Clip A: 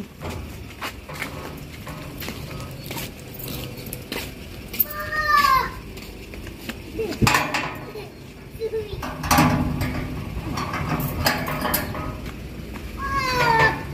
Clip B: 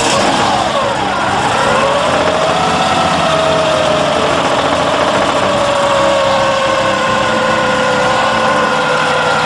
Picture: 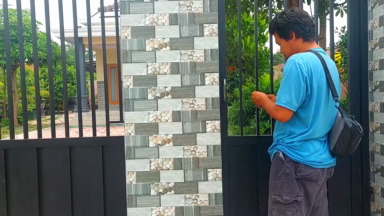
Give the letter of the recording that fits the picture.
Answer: A